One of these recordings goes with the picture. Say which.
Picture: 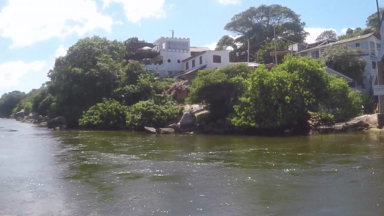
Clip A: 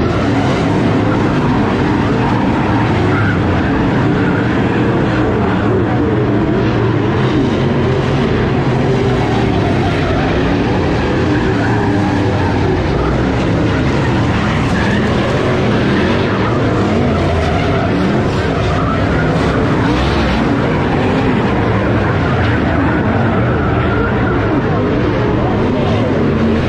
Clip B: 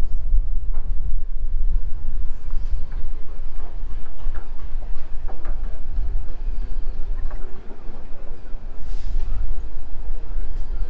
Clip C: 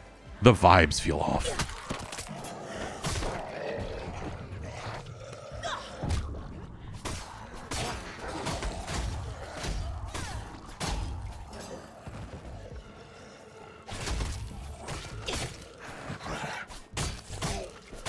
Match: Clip B